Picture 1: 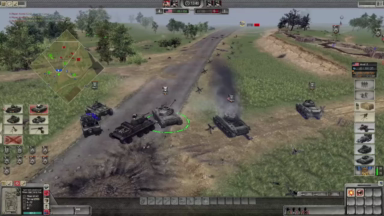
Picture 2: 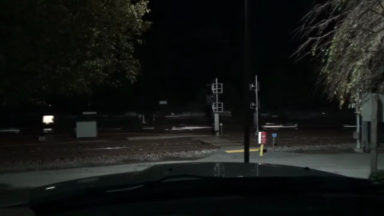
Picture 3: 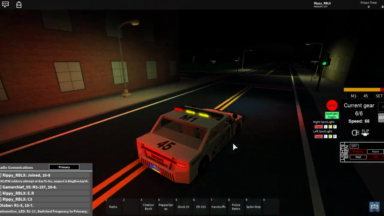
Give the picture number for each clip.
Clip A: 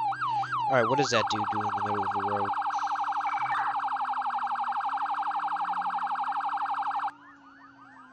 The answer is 3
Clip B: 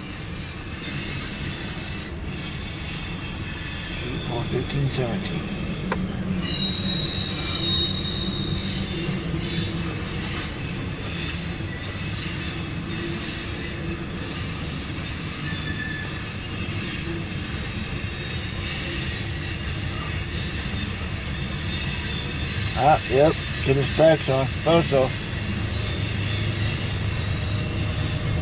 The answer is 2